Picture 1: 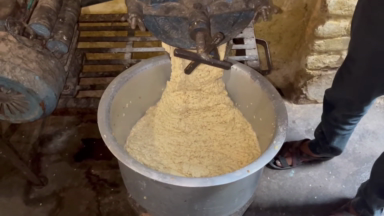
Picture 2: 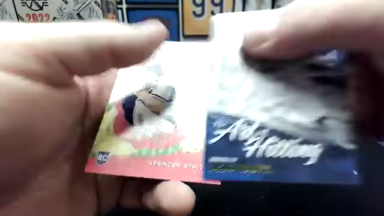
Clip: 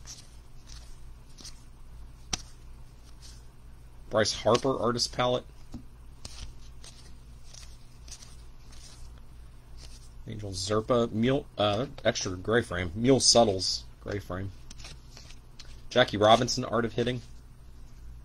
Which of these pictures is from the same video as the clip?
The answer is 2